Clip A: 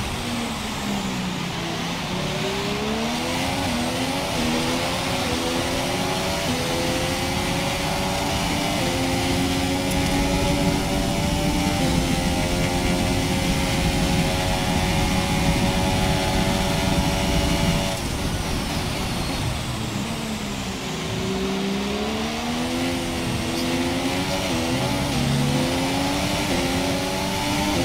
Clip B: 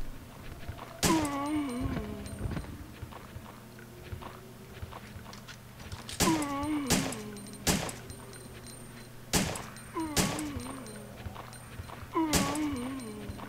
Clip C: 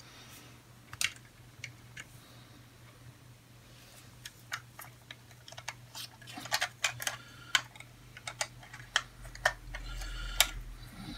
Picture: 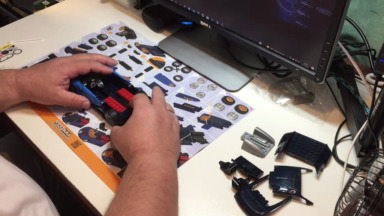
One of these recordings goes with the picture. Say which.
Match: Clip C